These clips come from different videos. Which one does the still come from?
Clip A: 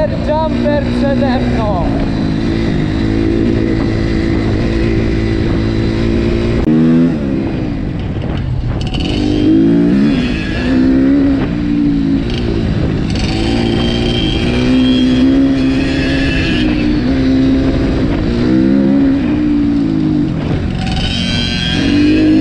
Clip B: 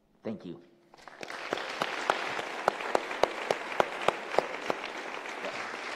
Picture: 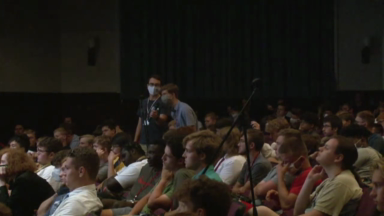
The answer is B